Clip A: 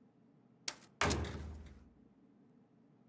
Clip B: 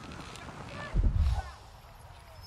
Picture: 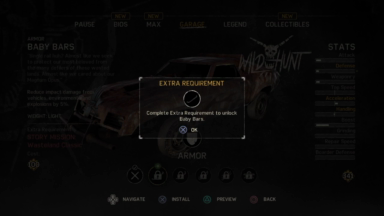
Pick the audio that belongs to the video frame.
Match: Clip A